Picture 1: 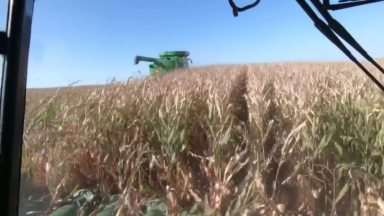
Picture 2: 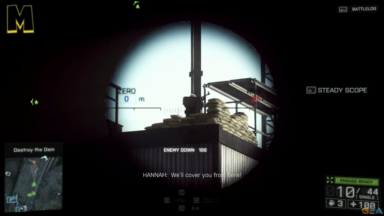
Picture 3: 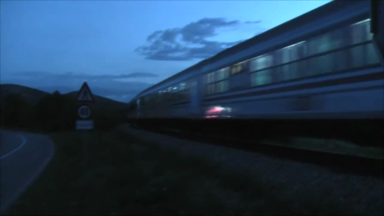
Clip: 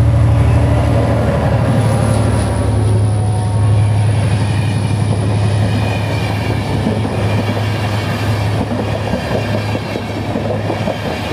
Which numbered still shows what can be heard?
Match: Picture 3